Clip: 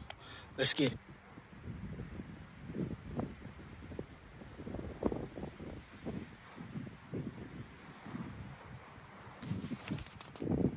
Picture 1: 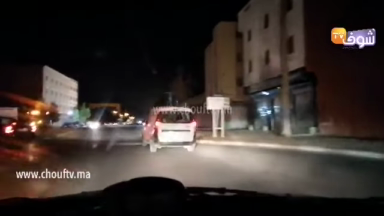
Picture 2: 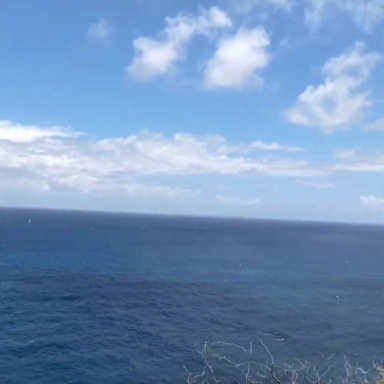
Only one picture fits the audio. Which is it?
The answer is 2